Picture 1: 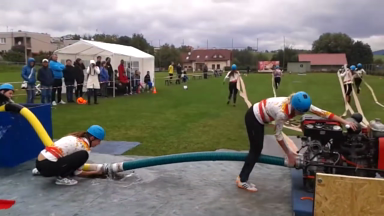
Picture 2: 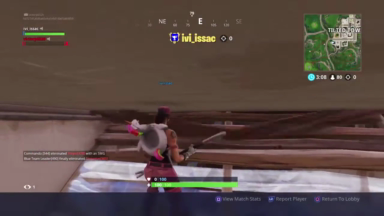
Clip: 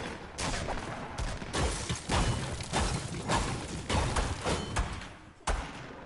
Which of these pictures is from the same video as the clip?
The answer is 2